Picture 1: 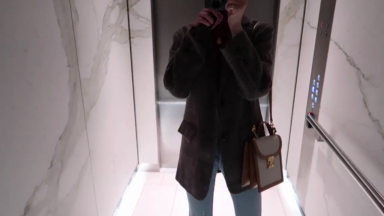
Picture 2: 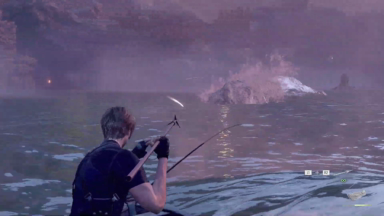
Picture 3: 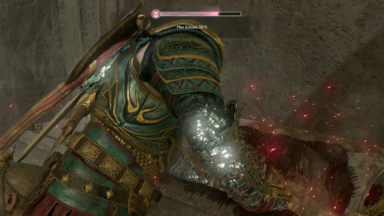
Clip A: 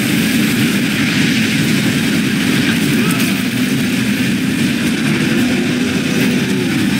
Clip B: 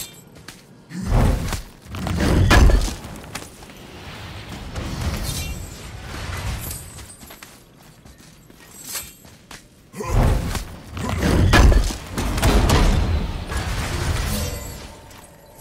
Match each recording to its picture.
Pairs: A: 2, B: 3